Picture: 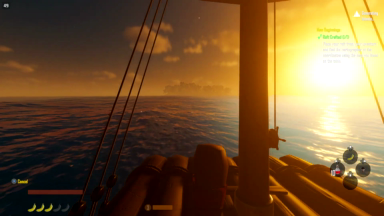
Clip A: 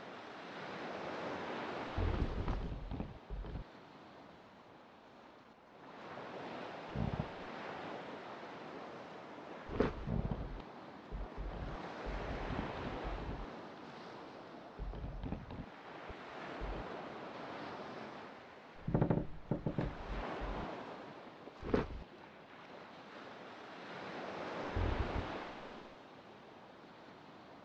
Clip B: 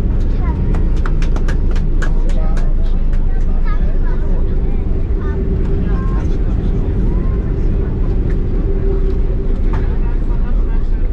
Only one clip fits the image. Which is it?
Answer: A